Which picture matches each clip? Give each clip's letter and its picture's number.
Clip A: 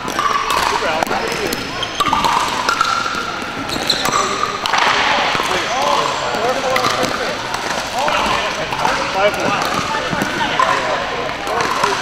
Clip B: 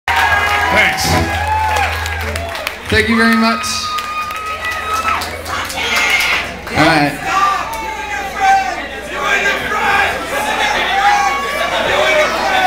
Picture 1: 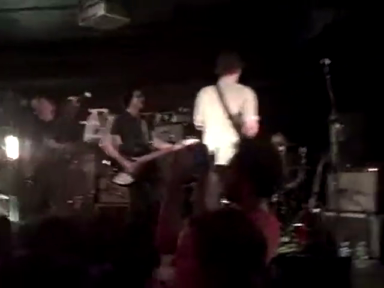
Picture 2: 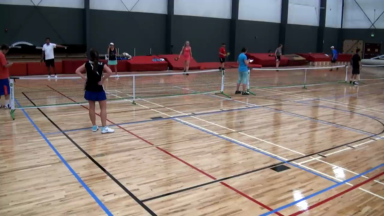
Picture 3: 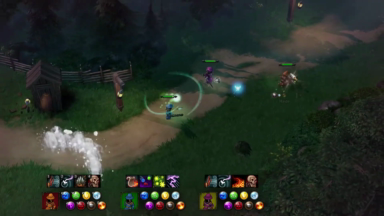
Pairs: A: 2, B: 1